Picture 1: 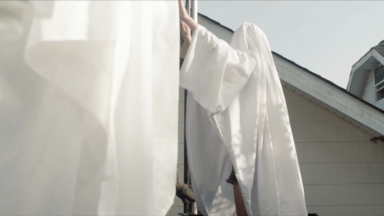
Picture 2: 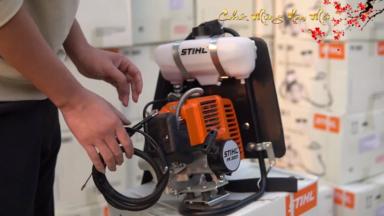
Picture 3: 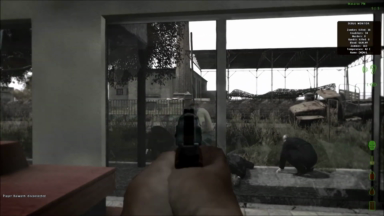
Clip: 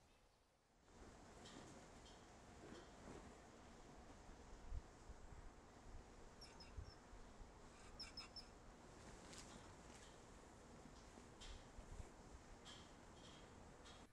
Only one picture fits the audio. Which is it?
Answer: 1